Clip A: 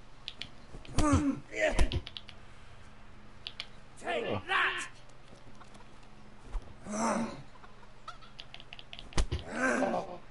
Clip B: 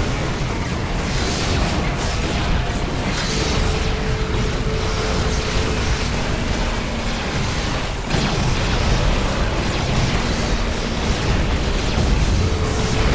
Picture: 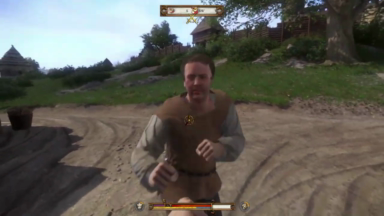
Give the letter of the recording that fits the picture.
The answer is A